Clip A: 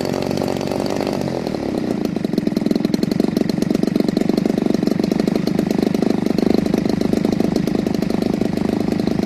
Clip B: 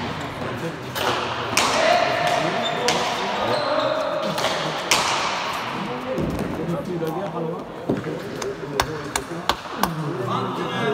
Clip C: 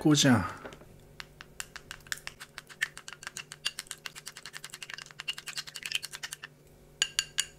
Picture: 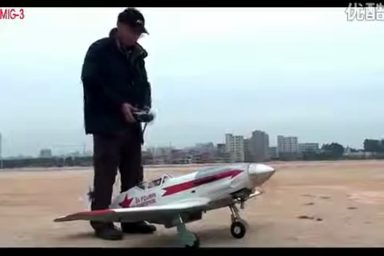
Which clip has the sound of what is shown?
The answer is A